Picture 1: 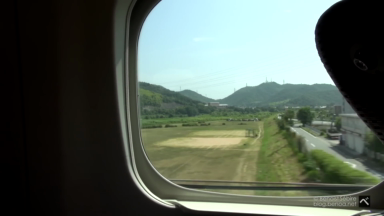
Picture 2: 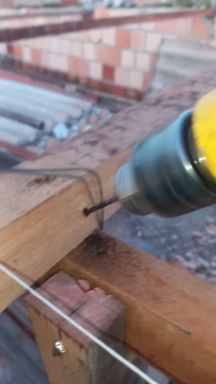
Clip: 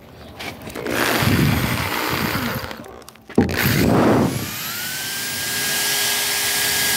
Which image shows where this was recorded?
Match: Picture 2